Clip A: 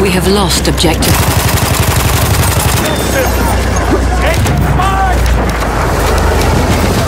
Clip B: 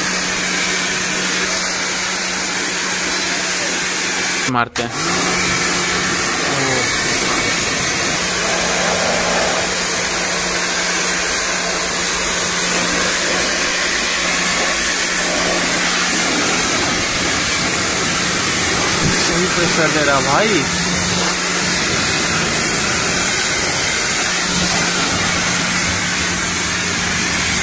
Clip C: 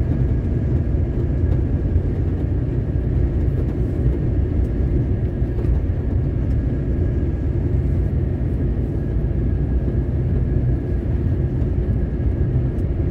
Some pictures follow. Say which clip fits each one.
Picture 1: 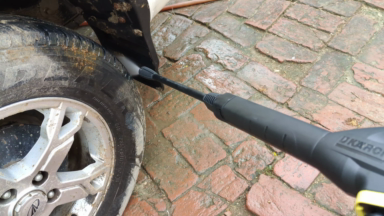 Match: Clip B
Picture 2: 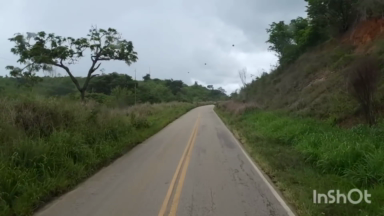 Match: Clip C